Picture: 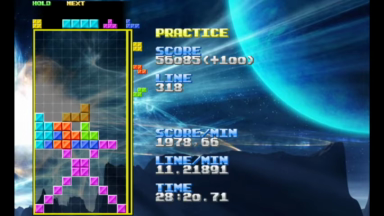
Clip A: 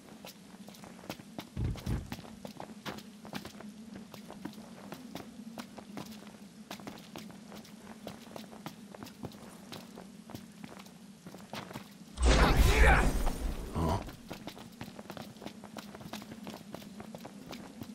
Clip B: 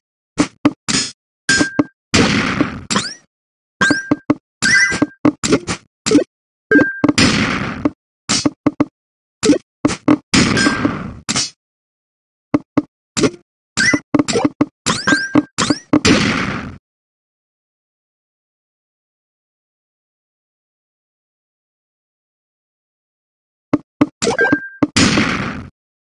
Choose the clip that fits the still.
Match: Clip B